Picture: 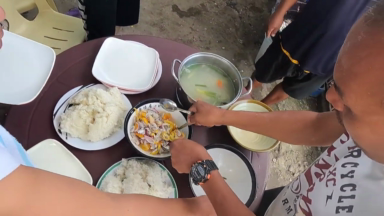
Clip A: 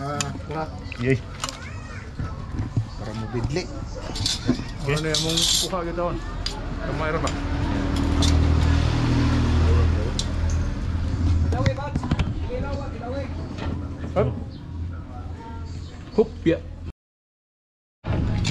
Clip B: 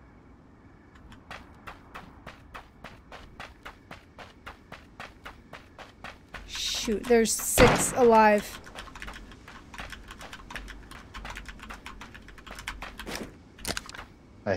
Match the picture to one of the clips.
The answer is A